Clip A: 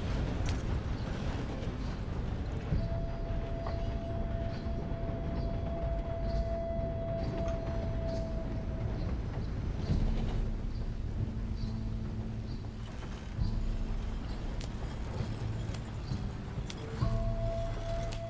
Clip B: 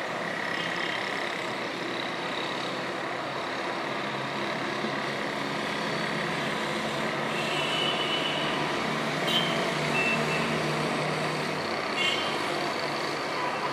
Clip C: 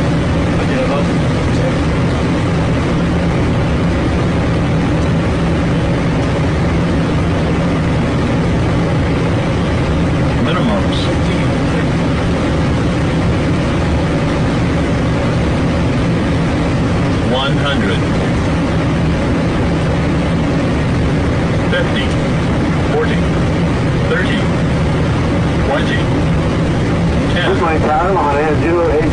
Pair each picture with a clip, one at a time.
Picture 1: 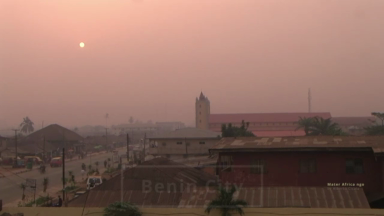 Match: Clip B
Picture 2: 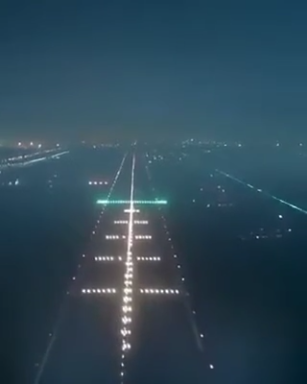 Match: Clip C